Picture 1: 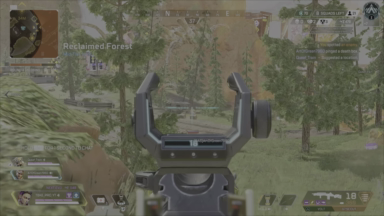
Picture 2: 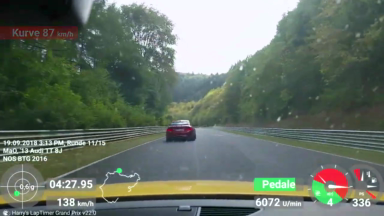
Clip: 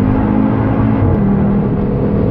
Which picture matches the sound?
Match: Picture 2